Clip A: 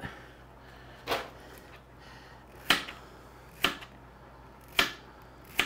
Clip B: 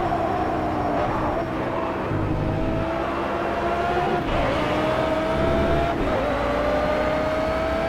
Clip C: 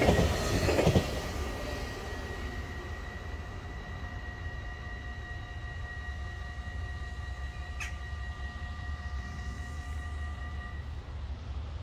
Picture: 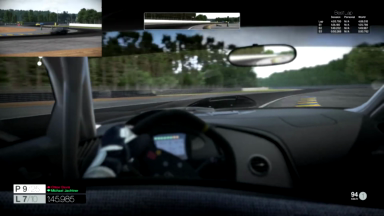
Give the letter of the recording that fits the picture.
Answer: B